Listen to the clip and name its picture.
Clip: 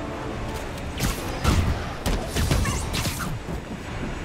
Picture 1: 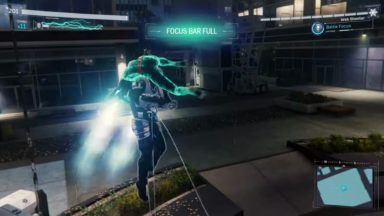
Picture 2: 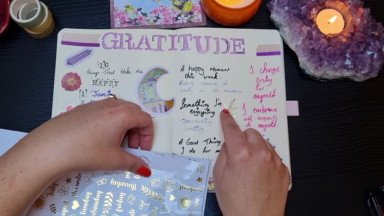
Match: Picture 1